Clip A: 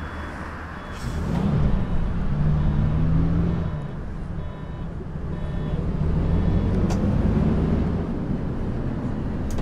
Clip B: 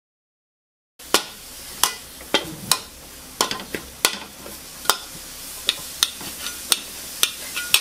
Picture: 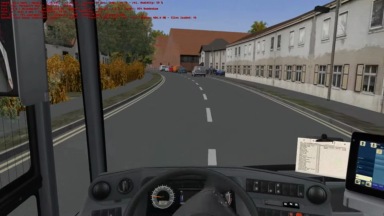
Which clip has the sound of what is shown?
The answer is A